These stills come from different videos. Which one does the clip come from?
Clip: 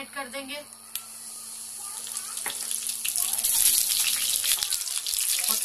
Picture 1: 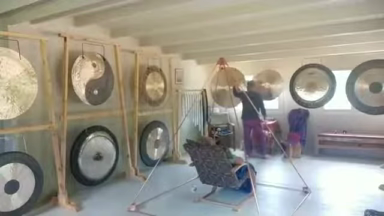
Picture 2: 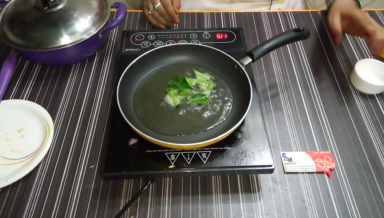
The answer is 2